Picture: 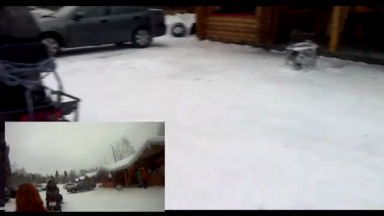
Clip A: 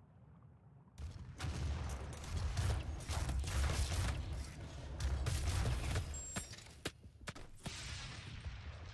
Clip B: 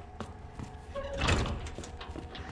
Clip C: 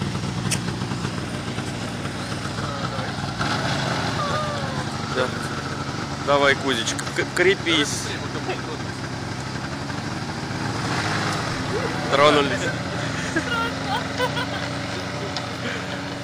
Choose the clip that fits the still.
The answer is C